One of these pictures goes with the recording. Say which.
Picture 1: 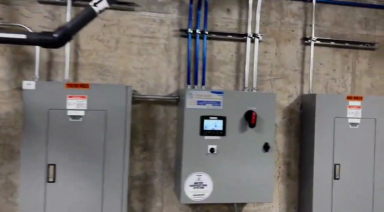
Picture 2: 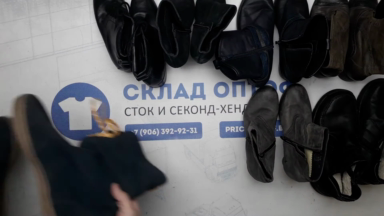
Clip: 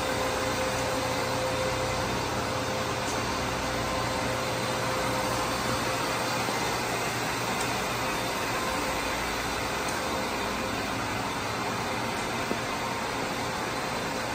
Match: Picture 1